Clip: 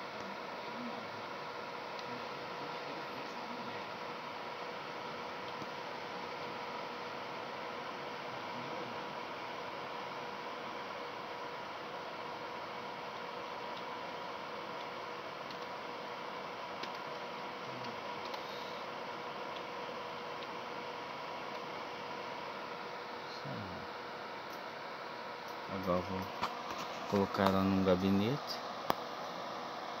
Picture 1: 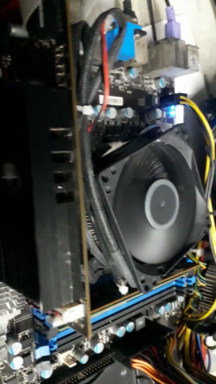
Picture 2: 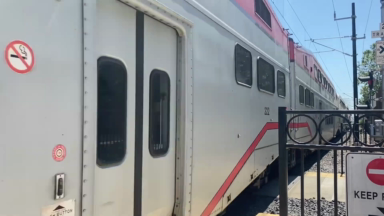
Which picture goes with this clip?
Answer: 1